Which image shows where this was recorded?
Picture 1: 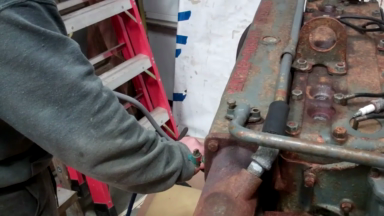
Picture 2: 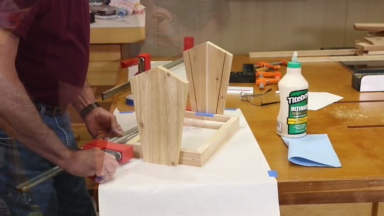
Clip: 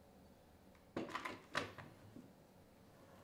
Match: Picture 2